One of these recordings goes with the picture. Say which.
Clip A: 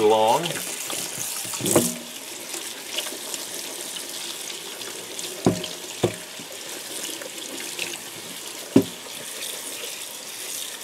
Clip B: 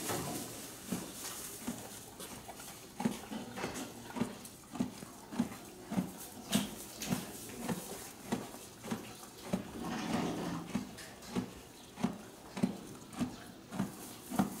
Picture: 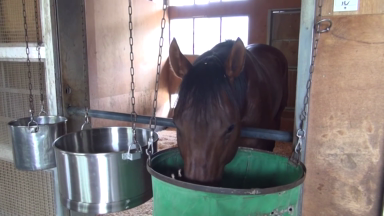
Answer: B